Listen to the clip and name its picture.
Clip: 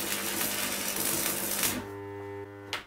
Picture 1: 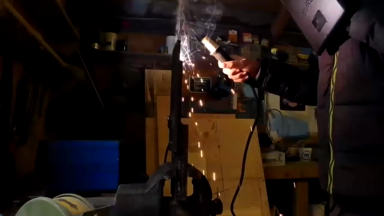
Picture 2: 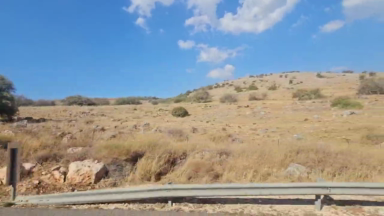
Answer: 1